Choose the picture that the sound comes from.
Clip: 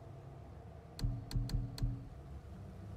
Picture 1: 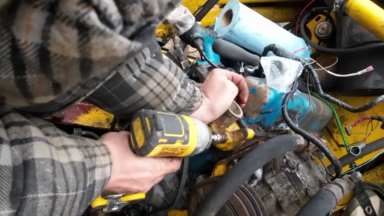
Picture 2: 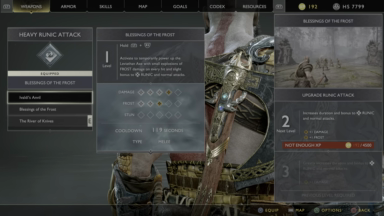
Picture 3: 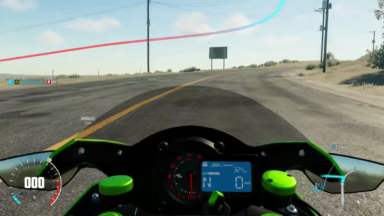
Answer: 2